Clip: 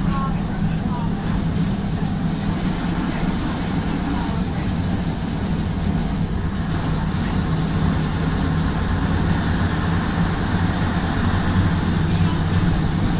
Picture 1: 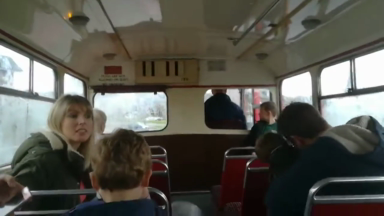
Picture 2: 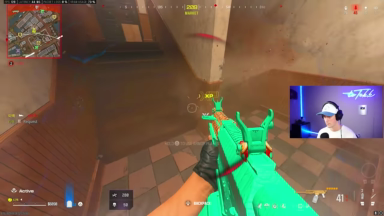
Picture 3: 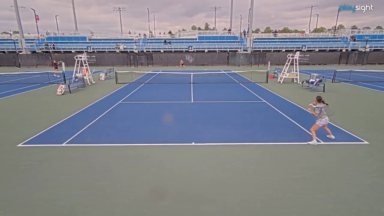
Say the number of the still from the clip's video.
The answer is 1